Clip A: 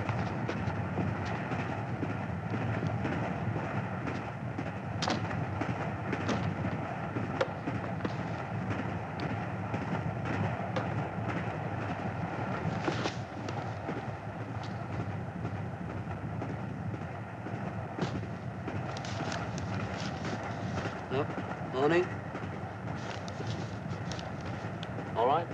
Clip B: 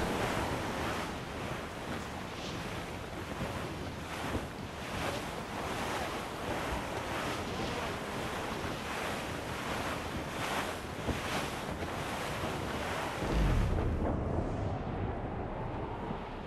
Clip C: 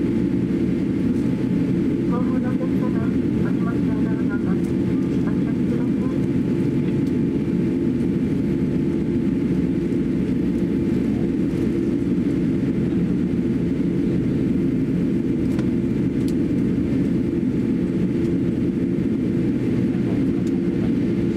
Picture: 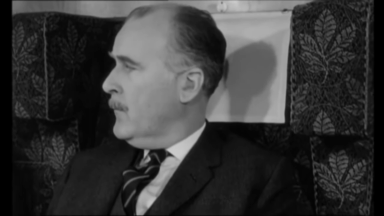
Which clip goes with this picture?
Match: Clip A